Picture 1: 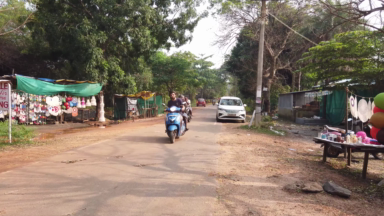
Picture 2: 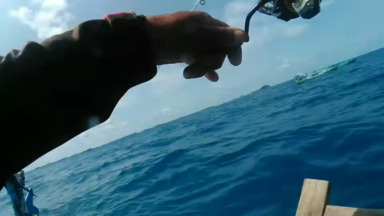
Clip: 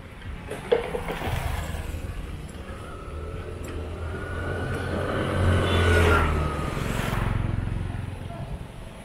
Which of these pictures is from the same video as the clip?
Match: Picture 1